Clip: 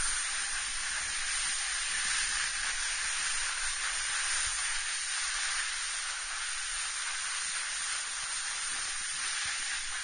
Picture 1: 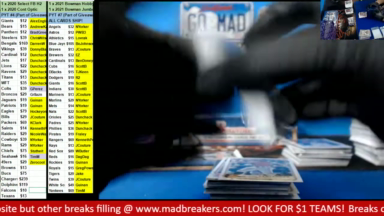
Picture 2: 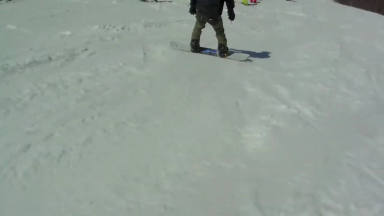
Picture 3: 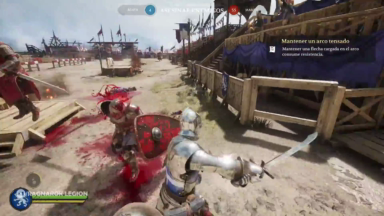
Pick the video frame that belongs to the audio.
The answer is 2